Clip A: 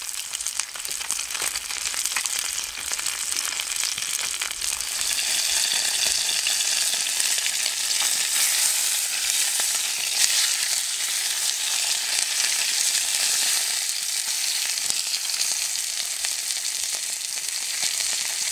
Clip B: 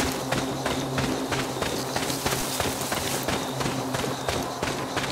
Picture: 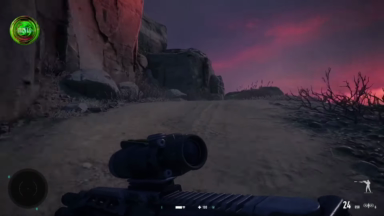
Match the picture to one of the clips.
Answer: B